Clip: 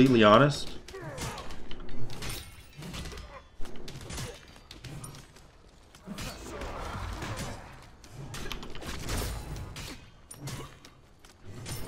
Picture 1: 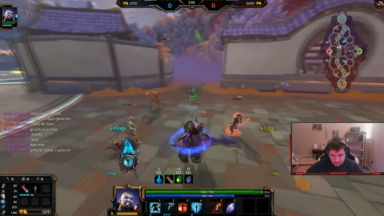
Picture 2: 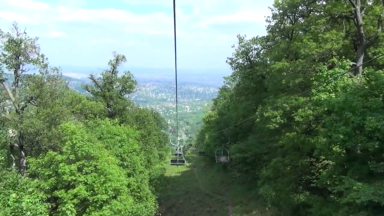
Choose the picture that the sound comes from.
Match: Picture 1